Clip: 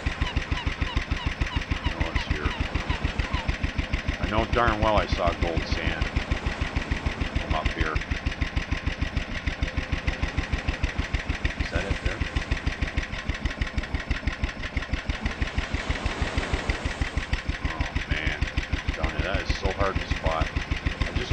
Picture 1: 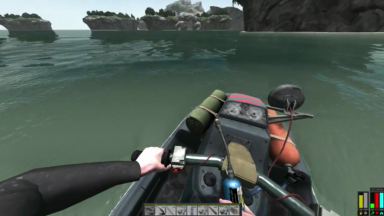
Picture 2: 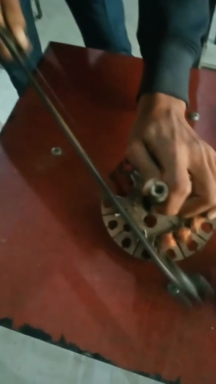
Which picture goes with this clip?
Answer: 1